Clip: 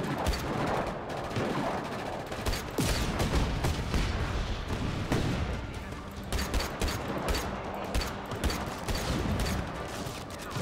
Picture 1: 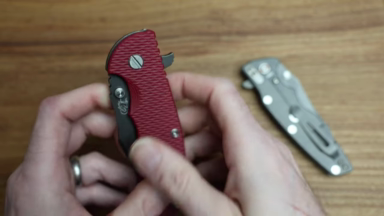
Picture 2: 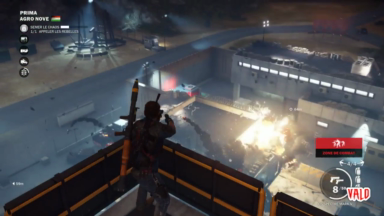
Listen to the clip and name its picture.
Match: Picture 2